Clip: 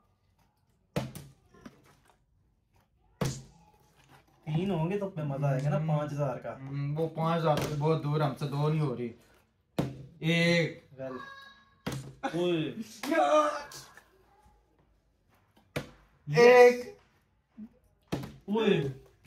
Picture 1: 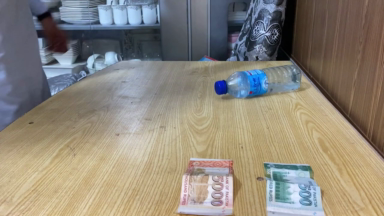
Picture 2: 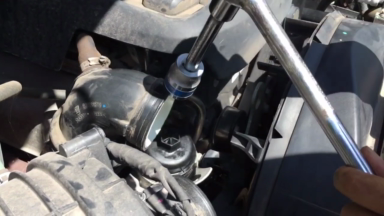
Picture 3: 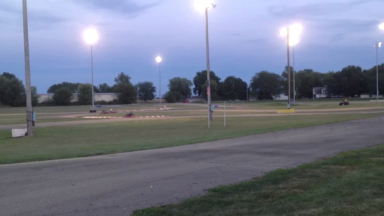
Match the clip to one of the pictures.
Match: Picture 1